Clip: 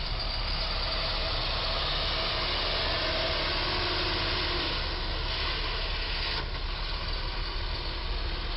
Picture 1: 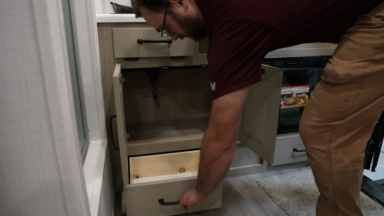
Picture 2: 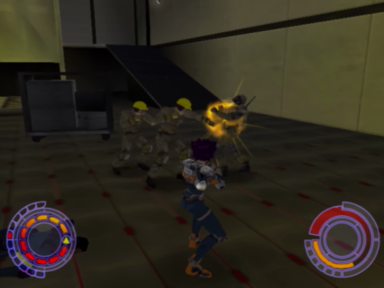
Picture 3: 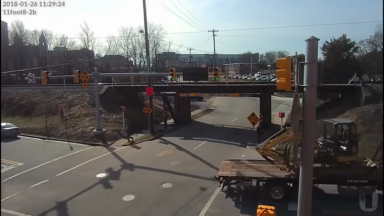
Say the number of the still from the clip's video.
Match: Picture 3